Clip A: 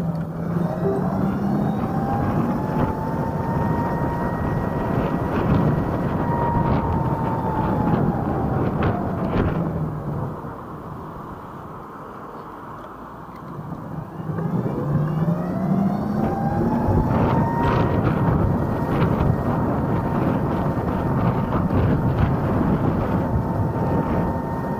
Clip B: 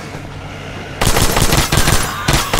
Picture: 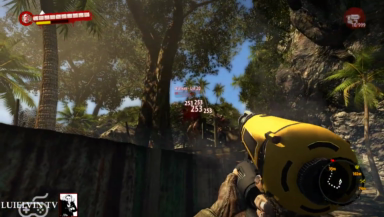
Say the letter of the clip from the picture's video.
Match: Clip B